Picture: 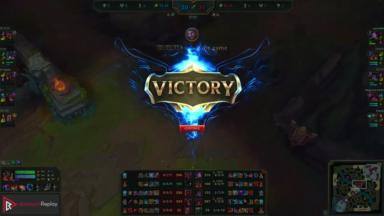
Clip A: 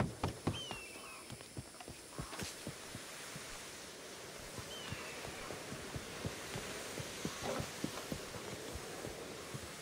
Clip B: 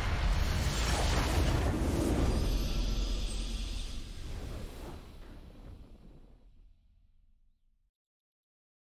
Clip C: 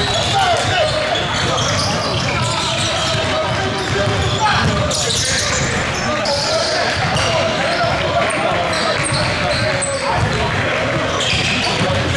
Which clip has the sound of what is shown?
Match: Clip B